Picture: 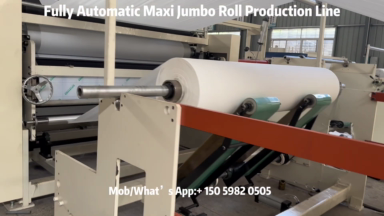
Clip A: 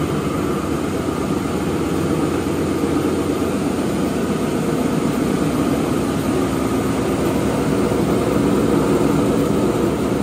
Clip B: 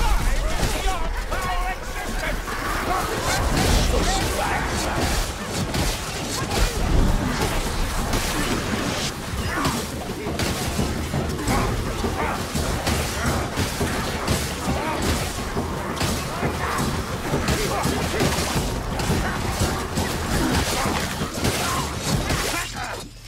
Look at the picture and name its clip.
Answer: A